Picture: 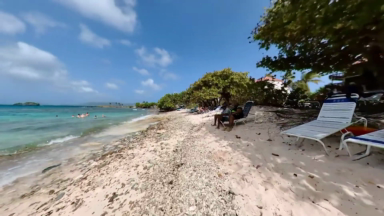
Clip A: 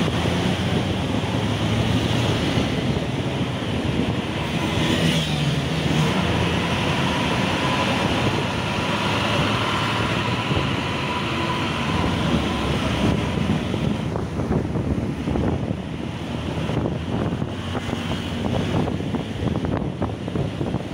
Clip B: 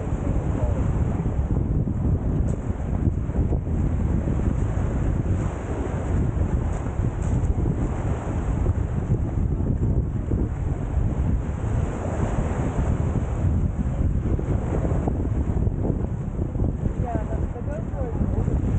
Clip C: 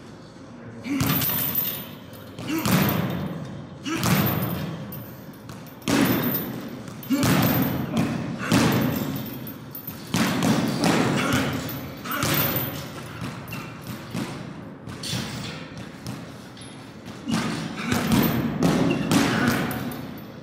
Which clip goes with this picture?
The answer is B